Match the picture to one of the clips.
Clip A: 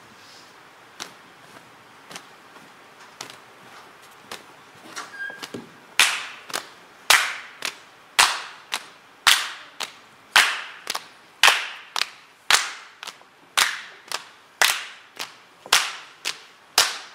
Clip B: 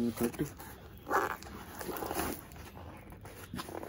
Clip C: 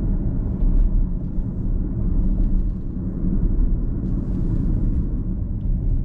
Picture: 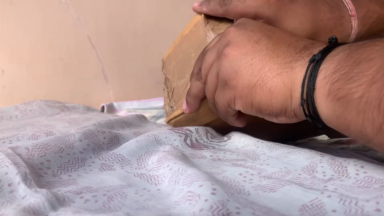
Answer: B